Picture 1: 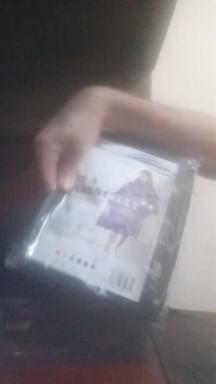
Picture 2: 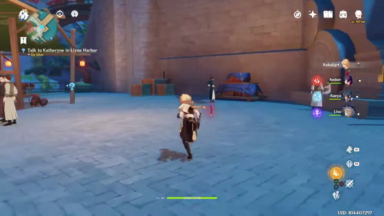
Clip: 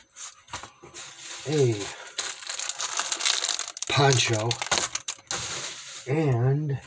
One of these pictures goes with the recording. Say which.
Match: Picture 1